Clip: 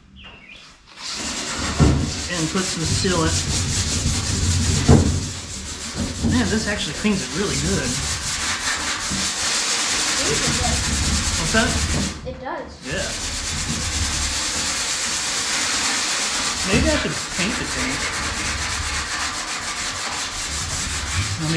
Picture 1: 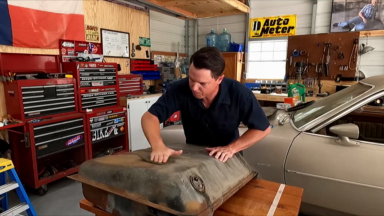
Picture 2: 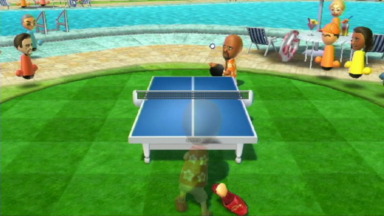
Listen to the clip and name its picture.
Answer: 1